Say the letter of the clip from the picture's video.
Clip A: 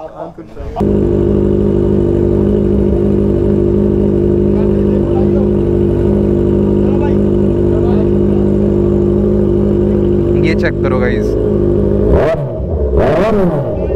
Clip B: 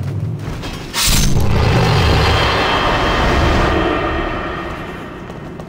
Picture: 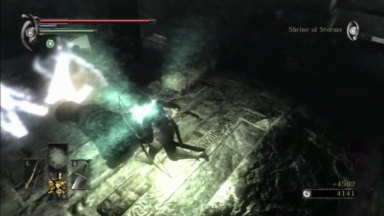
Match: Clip B